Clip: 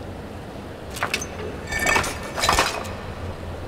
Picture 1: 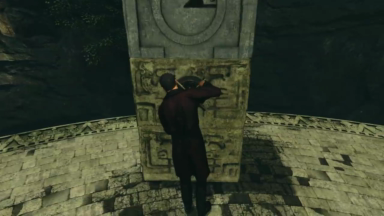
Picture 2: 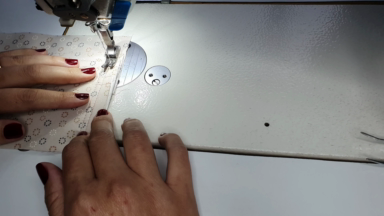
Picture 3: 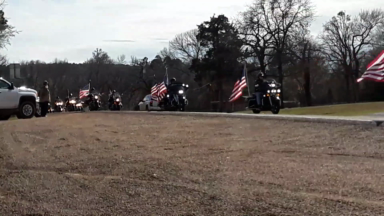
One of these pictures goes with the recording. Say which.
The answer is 1